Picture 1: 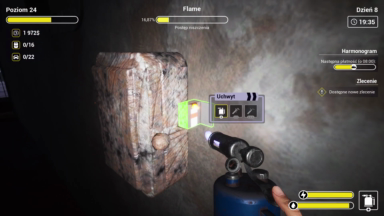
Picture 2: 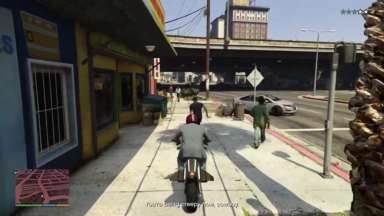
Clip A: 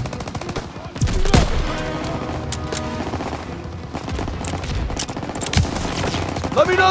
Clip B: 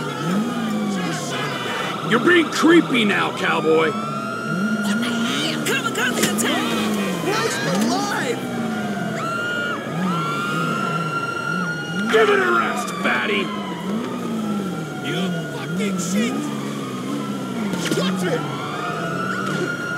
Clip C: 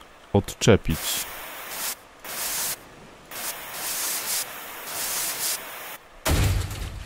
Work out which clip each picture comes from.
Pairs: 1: C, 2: B